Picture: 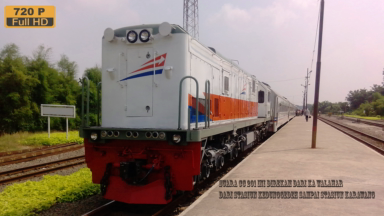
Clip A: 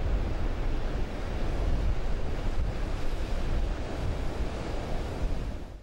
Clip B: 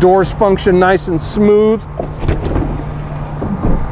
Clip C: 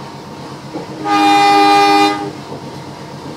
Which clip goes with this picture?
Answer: C